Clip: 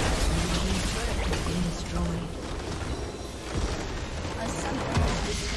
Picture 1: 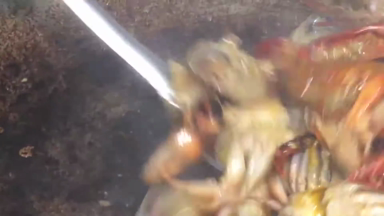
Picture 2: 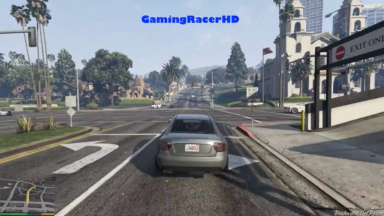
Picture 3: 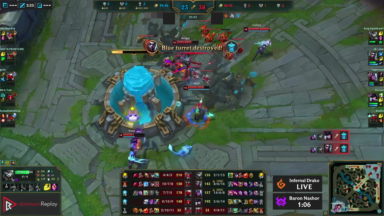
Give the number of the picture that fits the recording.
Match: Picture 3